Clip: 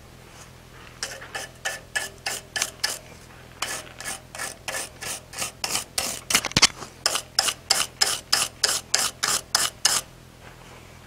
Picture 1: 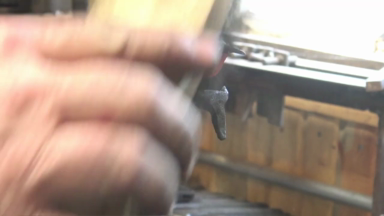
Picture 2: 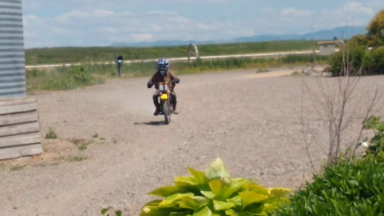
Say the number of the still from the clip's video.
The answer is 1